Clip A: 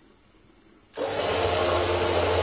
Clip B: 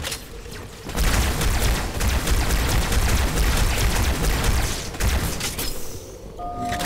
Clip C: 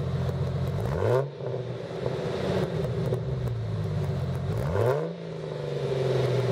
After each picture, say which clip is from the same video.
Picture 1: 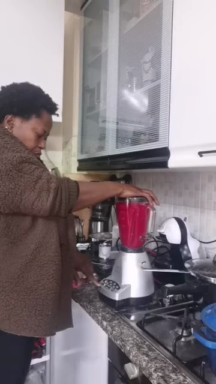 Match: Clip A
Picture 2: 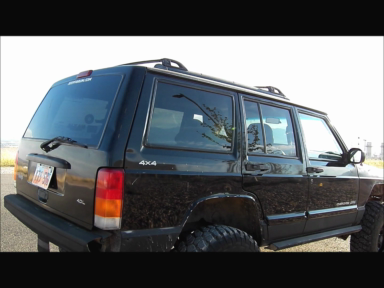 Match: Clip C